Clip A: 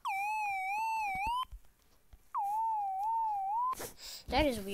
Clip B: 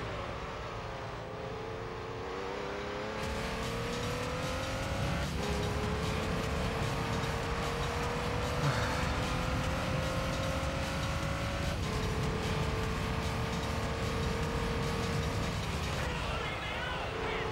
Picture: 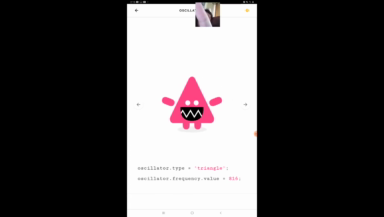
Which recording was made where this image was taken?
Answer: A